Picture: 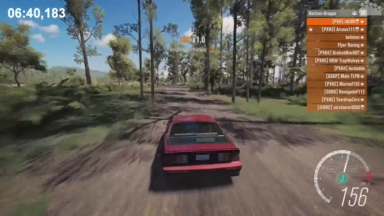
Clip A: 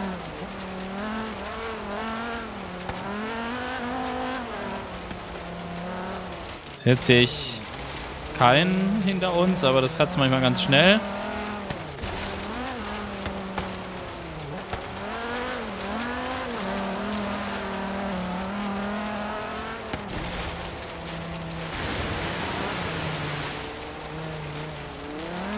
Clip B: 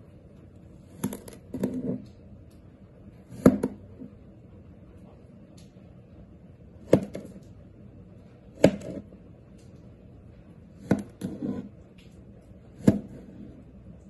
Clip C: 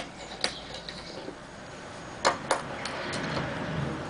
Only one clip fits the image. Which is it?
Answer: A